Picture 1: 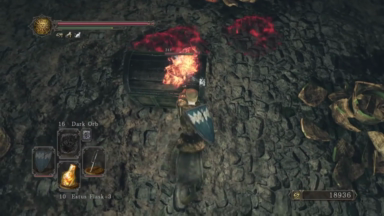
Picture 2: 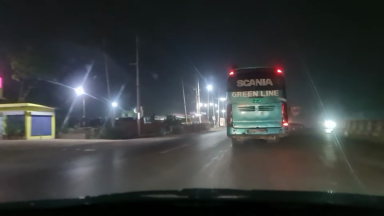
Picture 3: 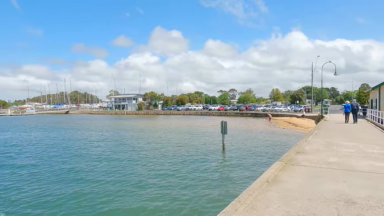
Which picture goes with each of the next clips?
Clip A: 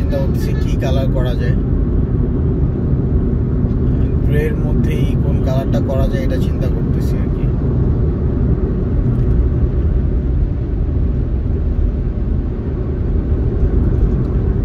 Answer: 2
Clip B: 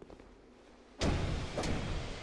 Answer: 1